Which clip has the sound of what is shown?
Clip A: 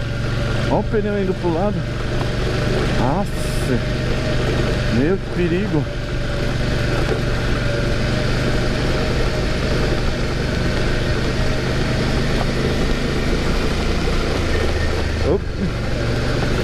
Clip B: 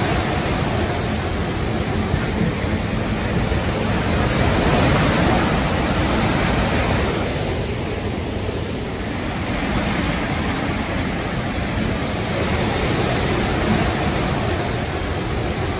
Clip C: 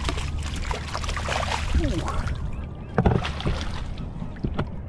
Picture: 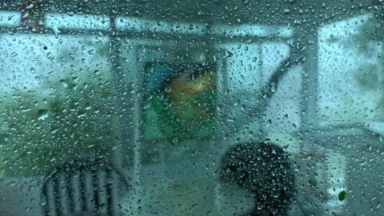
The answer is B